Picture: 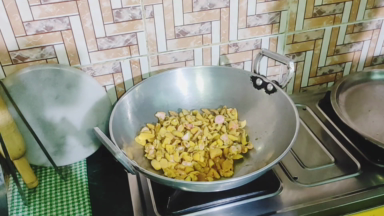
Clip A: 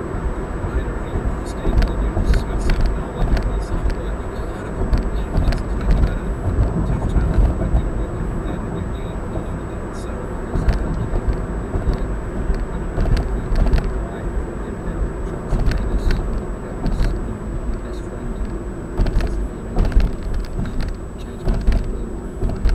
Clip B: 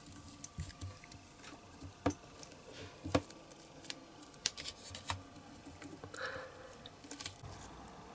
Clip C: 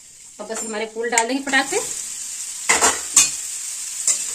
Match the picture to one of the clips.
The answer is C